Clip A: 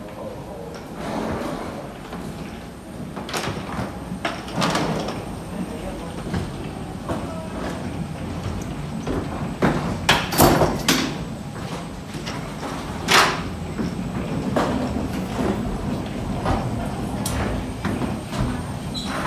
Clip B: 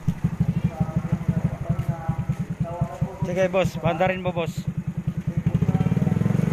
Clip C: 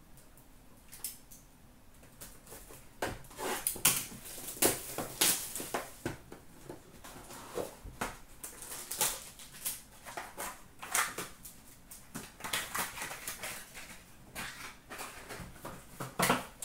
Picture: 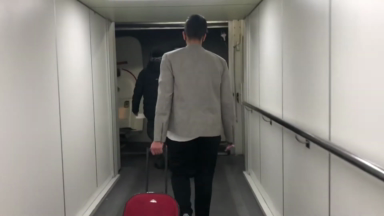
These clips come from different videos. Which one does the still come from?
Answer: A